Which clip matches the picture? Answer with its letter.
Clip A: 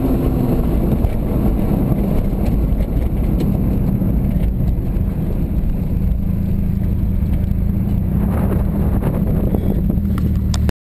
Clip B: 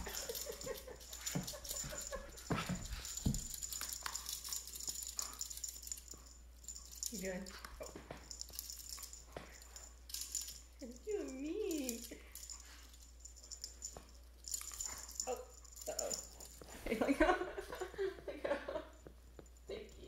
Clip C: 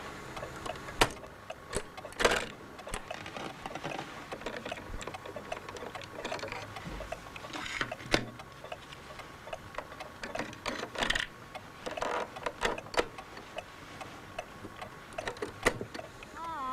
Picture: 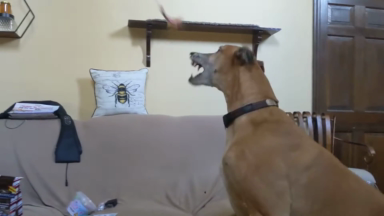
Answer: B